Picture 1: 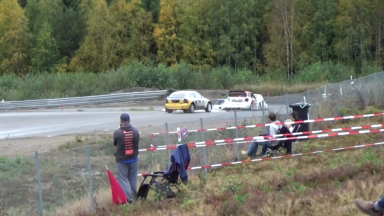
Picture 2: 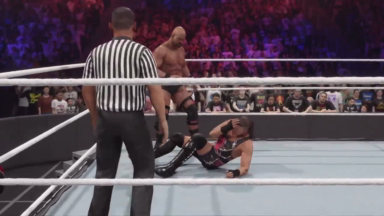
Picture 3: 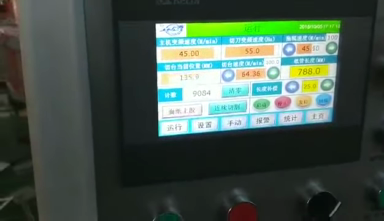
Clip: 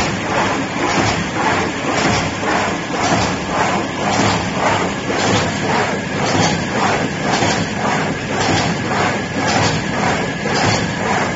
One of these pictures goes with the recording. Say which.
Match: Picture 3